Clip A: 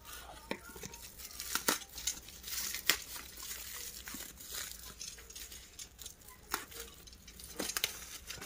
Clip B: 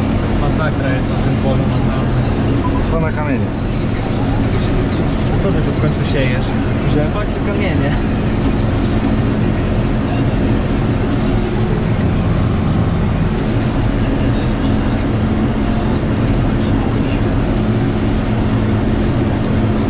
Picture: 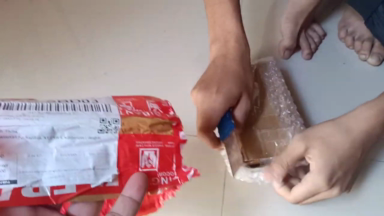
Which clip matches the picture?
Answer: A